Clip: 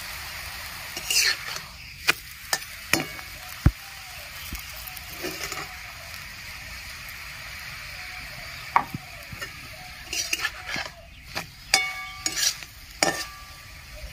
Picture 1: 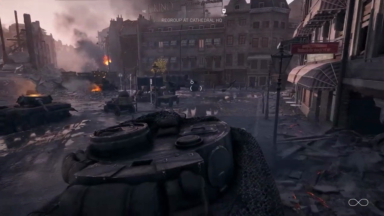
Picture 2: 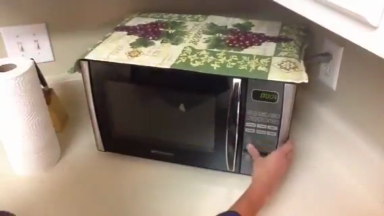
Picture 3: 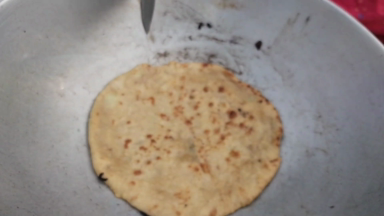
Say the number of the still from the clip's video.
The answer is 3